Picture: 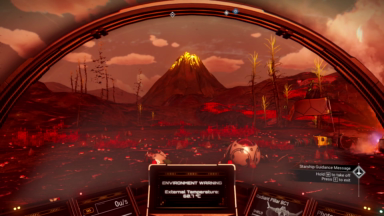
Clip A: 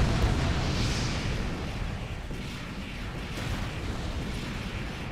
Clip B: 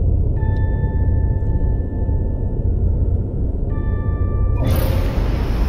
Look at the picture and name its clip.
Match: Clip B